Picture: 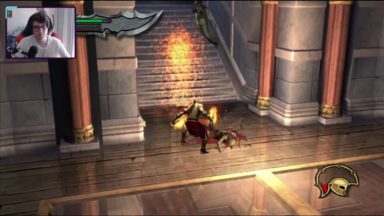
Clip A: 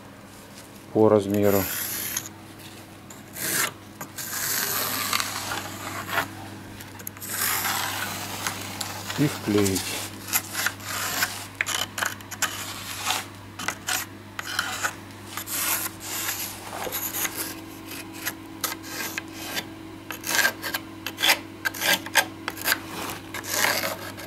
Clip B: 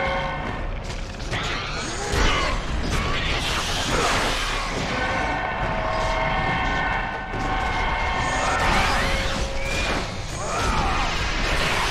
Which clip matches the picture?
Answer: B